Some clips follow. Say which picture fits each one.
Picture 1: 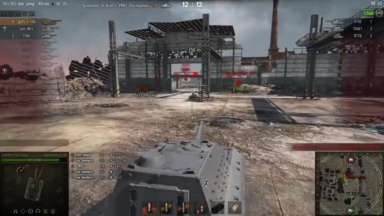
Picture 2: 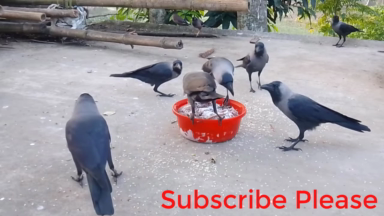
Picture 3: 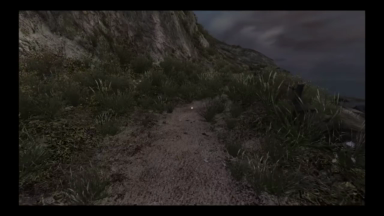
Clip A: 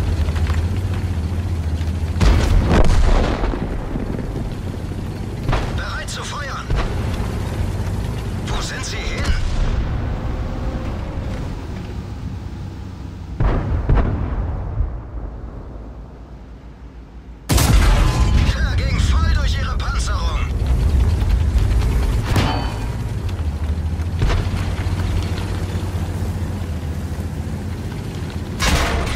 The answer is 1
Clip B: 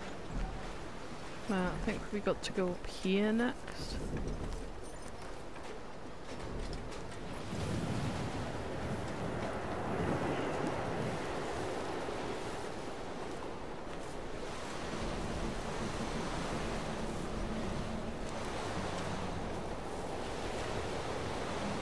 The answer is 3